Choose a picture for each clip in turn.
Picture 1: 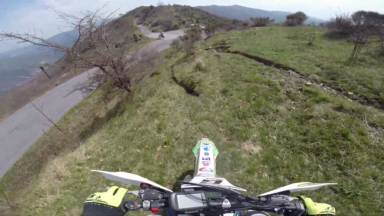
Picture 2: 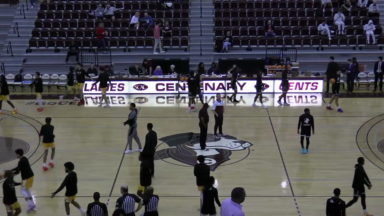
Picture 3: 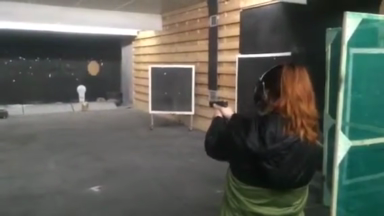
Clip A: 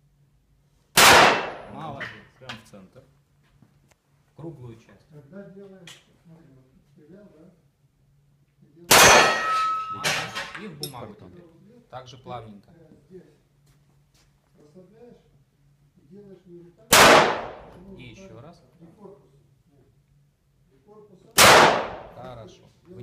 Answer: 3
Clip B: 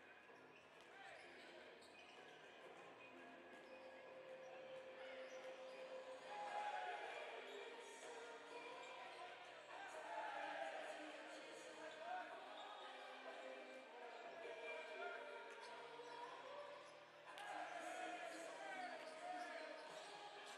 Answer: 2